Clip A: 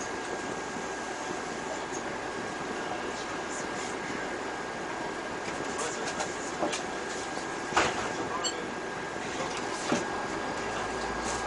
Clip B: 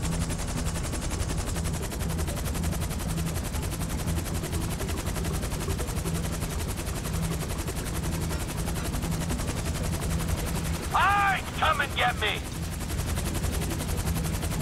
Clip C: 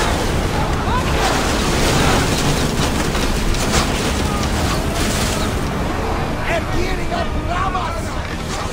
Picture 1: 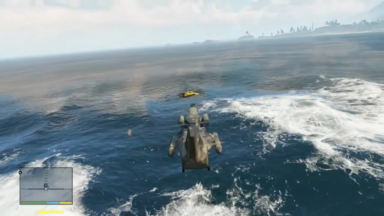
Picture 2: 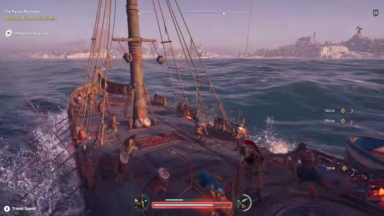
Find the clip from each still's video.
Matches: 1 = B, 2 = C